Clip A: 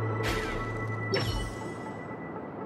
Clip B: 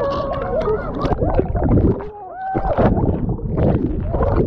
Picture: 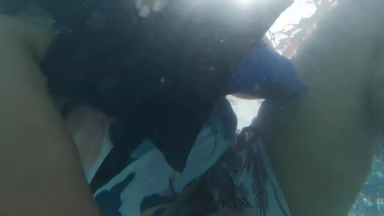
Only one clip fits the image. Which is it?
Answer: B